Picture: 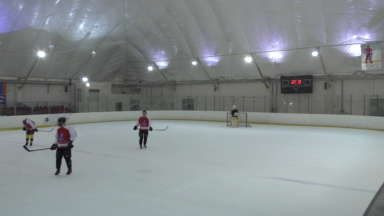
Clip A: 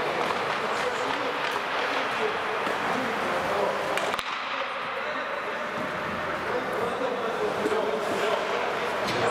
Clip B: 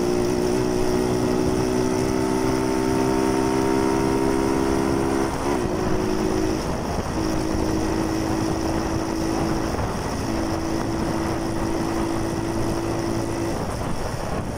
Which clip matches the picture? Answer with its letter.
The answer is A